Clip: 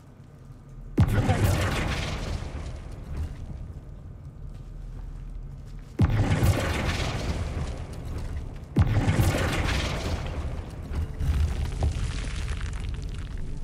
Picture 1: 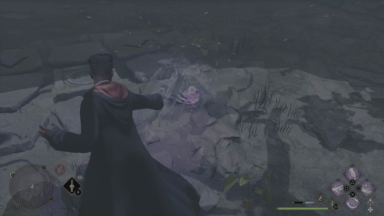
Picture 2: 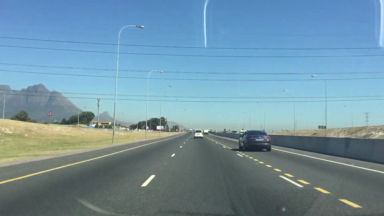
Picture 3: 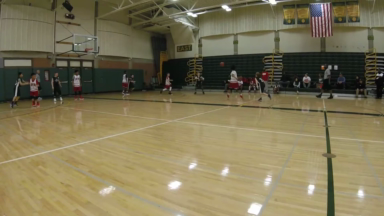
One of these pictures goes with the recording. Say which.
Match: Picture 1